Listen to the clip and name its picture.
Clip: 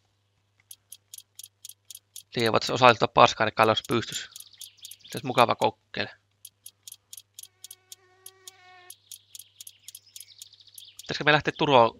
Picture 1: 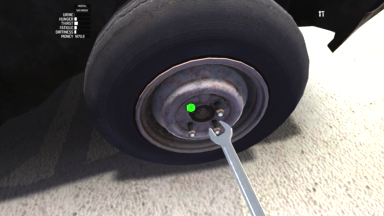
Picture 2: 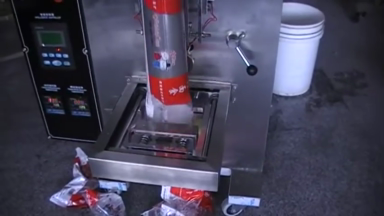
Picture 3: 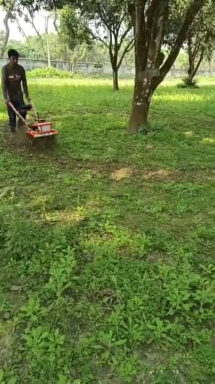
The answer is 1